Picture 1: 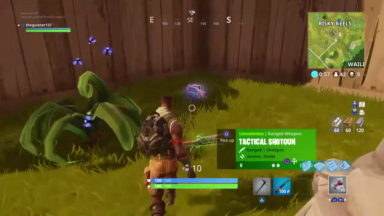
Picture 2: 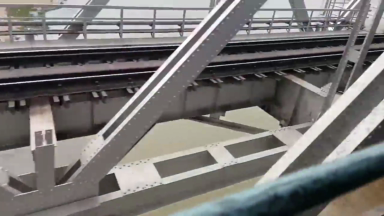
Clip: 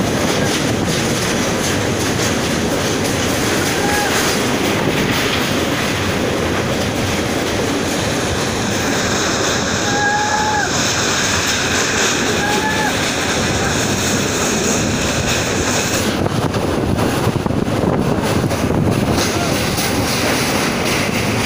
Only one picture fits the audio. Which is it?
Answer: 2